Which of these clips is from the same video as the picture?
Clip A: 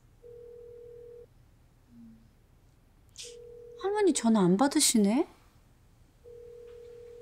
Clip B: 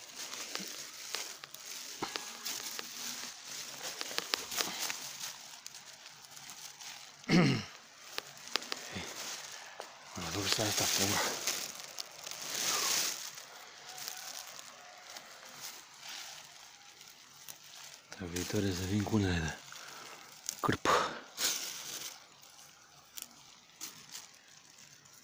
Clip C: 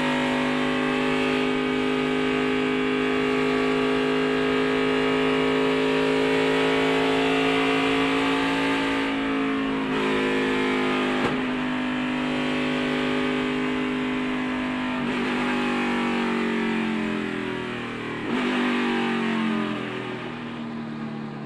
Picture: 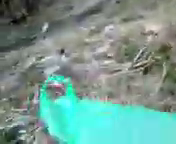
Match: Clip B